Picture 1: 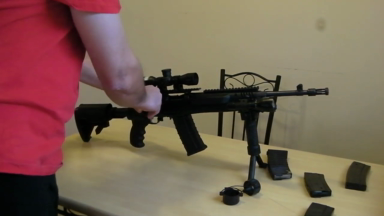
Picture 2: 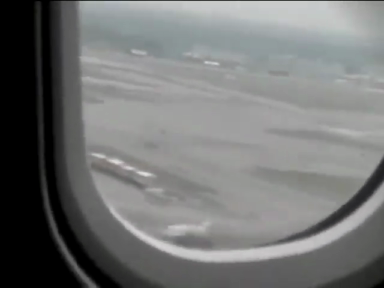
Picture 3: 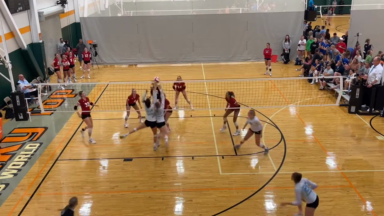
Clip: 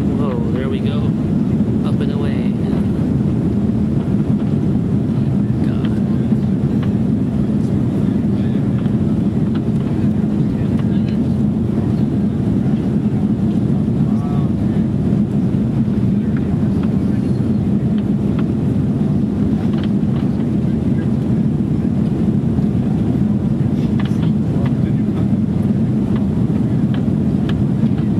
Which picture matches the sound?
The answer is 2